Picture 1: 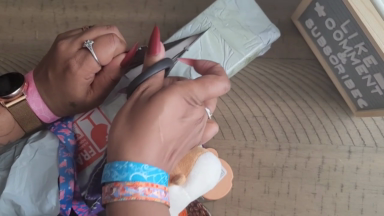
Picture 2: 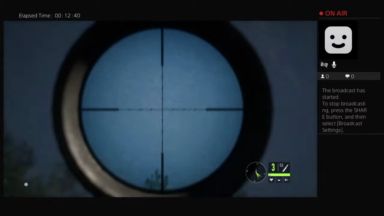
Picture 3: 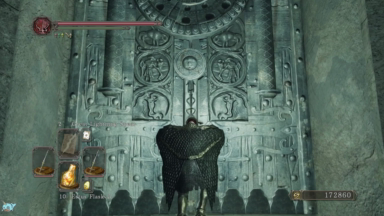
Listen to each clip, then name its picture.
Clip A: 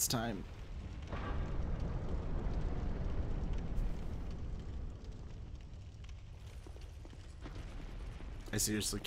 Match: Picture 3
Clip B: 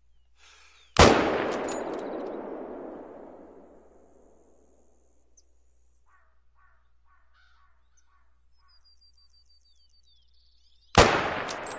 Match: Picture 2